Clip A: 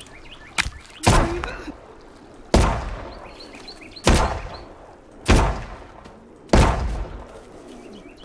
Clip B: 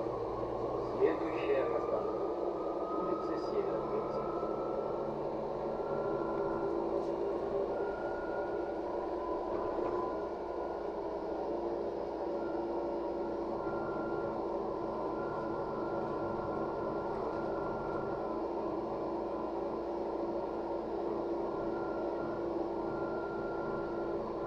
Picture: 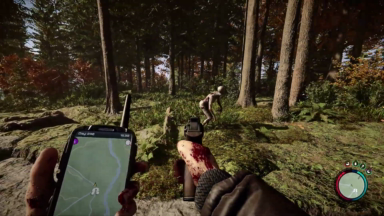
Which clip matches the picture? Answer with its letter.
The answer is A